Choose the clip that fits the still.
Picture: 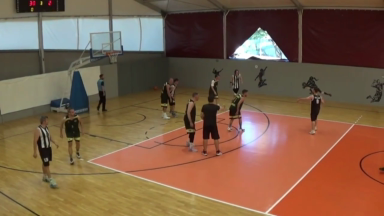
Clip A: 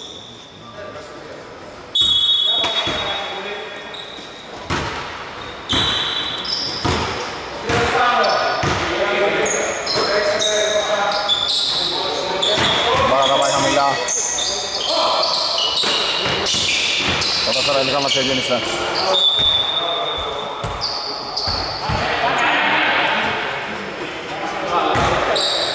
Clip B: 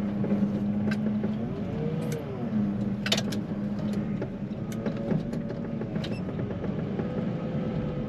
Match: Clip A